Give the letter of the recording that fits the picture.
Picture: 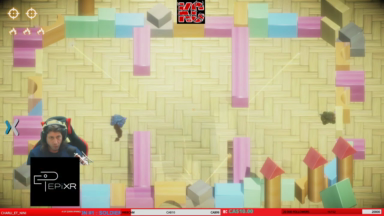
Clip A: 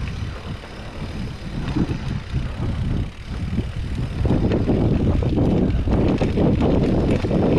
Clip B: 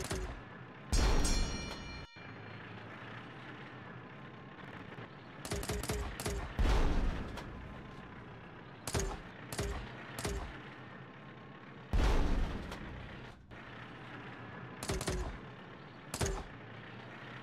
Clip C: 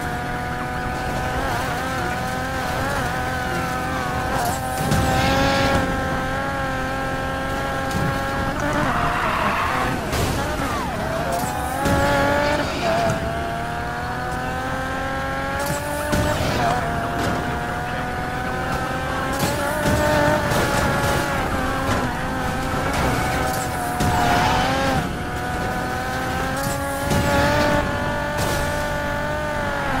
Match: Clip B